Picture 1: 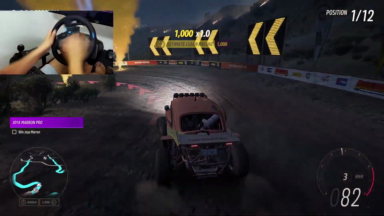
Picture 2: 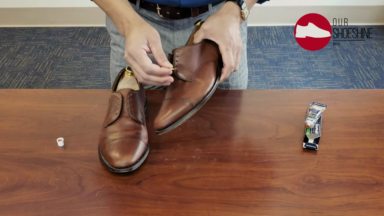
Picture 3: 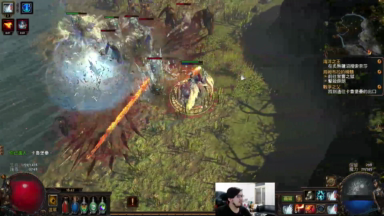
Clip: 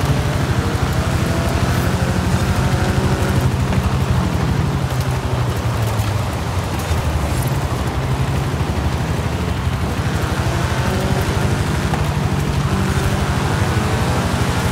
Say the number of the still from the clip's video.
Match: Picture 1